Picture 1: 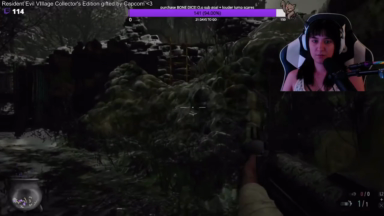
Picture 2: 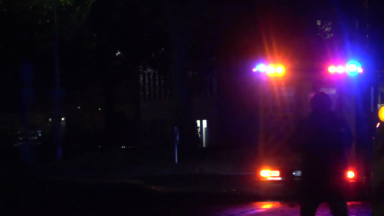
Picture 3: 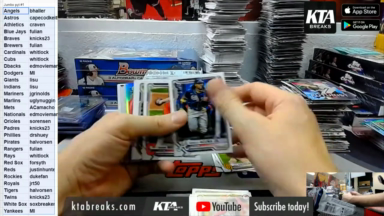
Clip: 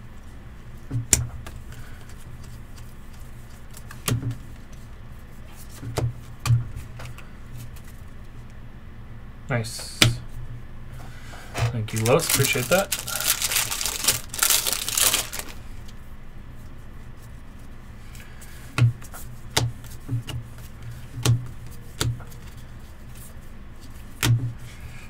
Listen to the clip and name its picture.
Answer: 3